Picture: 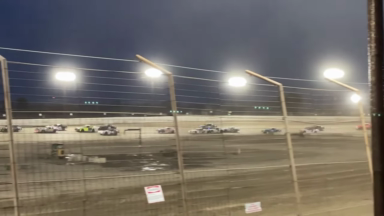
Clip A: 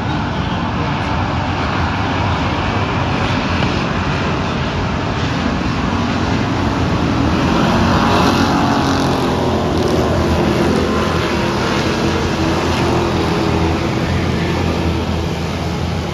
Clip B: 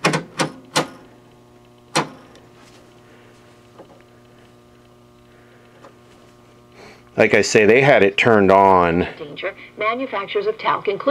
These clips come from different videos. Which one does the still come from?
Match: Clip A